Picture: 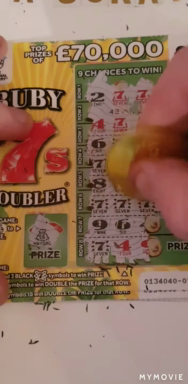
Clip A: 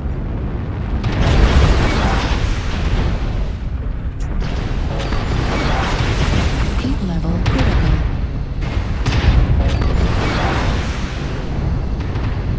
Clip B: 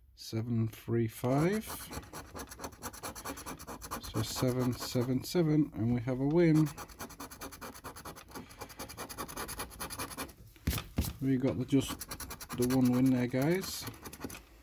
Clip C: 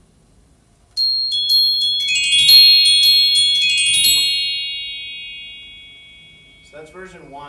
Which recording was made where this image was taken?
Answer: B